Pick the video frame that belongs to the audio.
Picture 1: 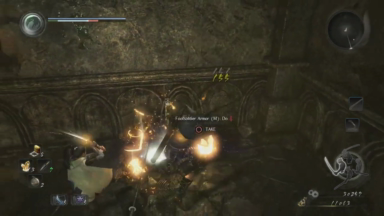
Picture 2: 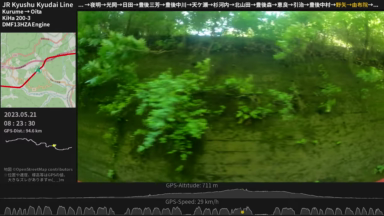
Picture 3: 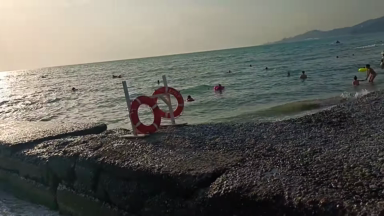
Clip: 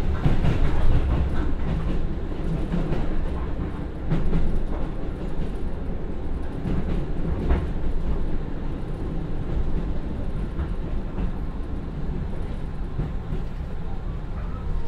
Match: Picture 2